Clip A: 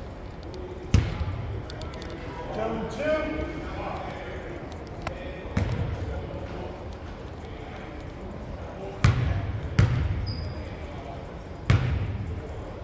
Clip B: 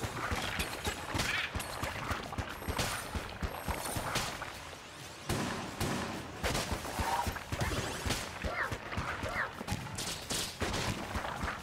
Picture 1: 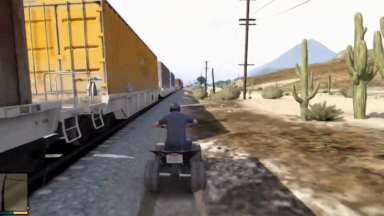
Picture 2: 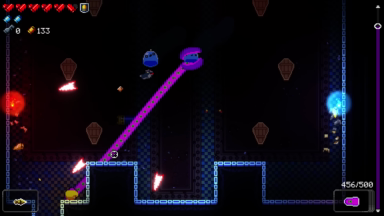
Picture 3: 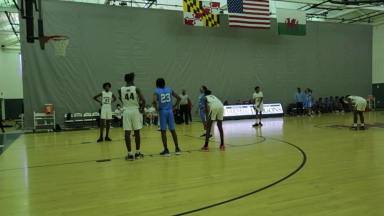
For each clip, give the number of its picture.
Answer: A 3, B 2